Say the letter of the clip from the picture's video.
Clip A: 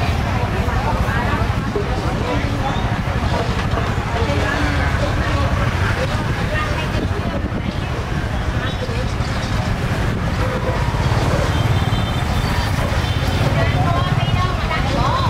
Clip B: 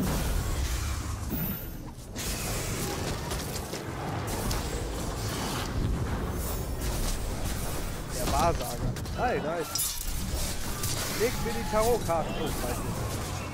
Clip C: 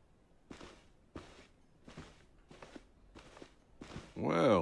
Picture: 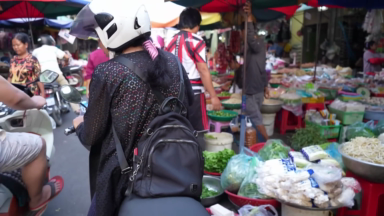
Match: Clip A